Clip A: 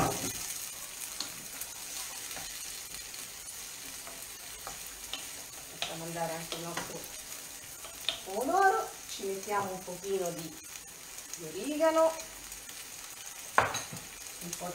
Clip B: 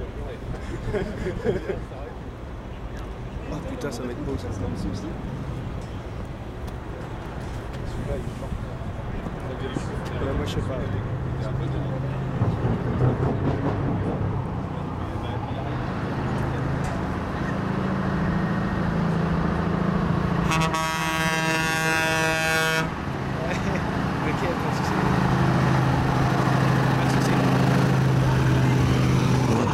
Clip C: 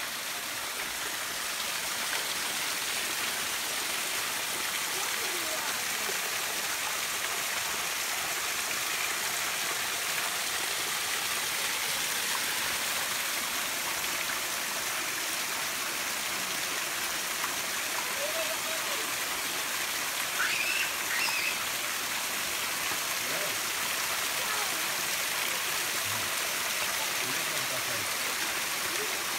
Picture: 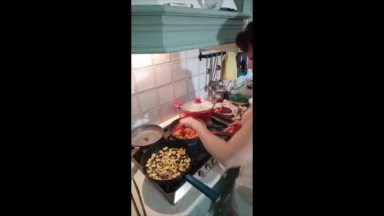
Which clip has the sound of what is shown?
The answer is A